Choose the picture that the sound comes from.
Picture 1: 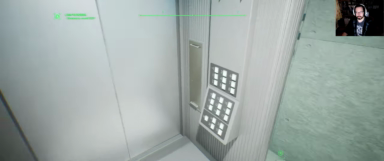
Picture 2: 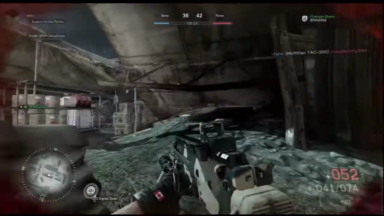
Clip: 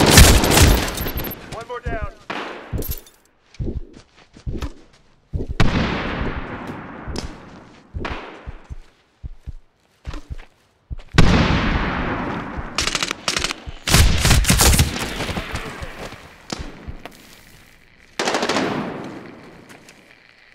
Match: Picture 2